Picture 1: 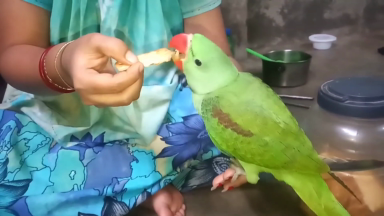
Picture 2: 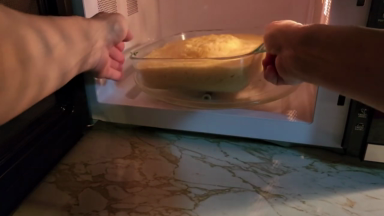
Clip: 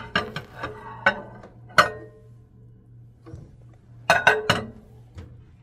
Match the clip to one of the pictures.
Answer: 2